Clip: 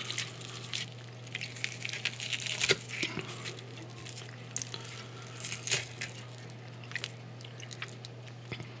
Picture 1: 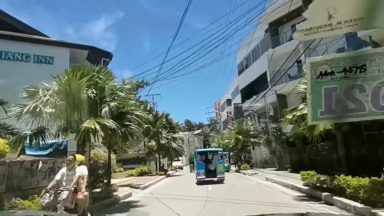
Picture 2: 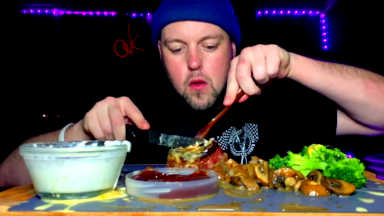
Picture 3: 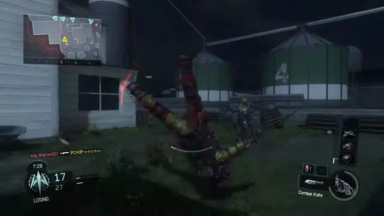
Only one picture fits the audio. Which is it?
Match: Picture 2